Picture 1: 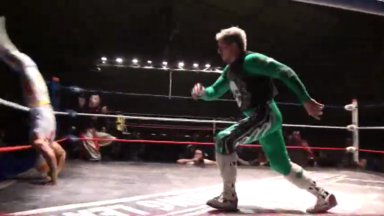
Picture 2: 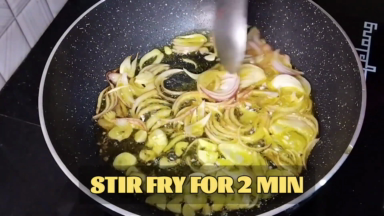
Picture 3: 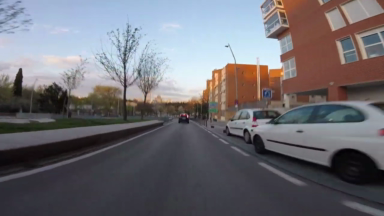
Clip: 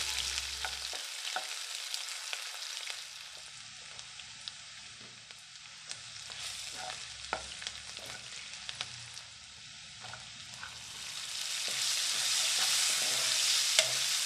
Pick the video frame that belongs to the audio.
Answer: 2